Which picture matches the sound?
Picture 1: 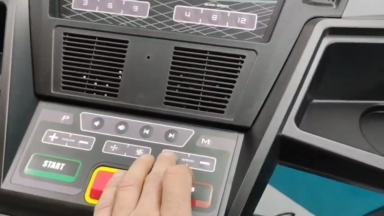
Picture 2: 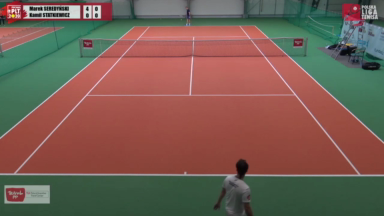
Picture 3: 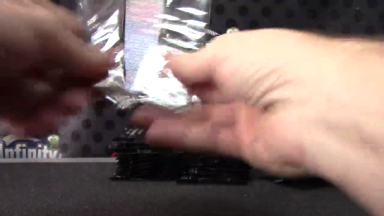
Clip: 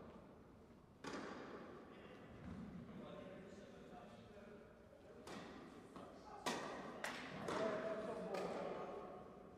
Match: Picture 2